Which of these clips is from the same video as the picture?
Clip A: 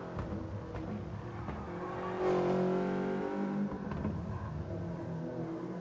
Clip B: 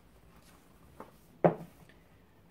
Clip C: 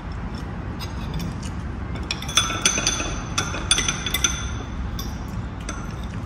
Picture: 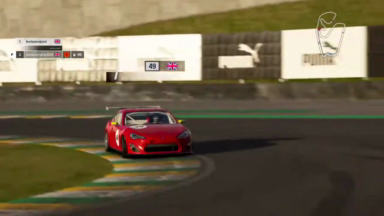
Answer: A